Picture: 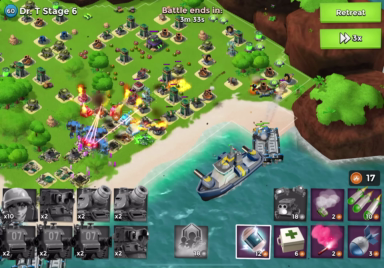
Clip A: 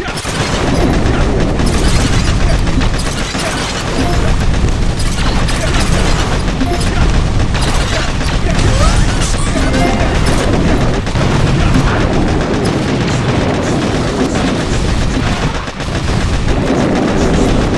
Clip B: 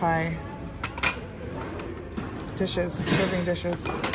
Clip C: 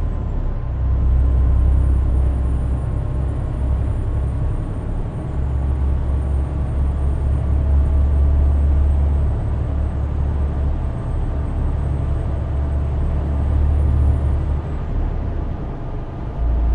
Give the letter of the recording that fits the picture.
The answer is A